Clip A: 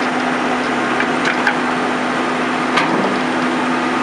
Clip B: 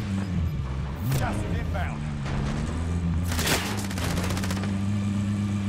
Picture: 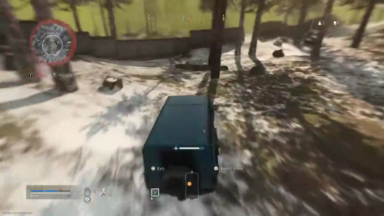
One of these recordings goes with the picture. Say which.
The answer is B